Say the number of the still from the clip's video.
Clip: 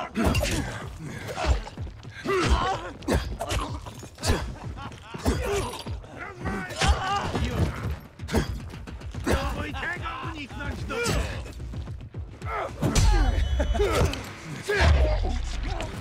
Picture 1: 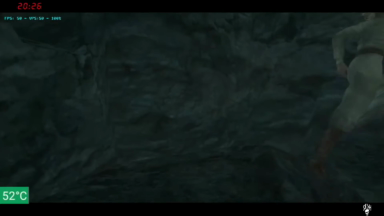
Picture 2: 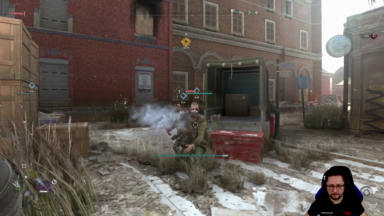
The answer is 2